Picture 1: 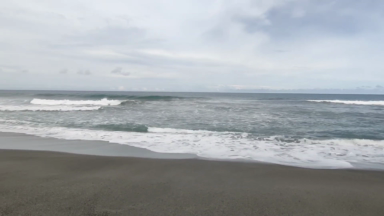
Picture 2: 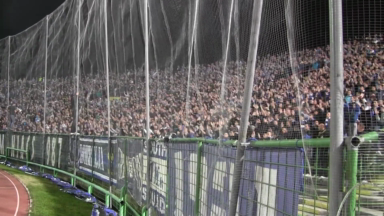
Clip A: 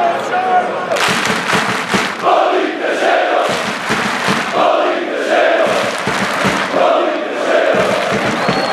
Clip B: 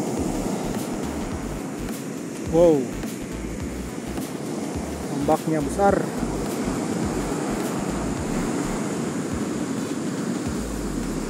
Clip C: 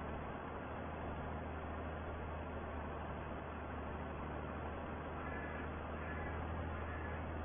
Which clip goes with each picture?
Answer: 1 B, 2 A